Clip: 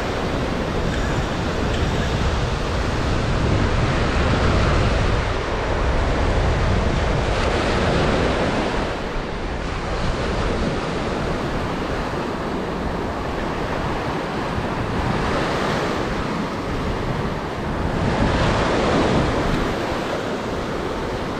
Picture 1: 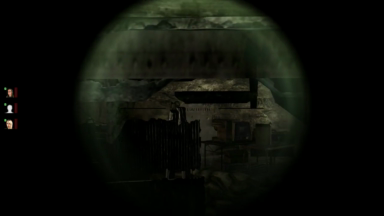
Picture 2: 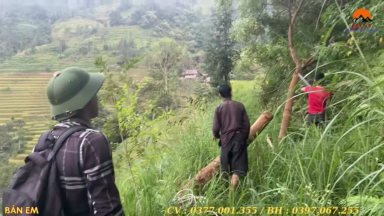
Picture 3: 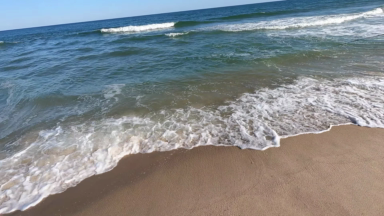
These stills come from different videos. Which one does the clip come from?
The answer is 3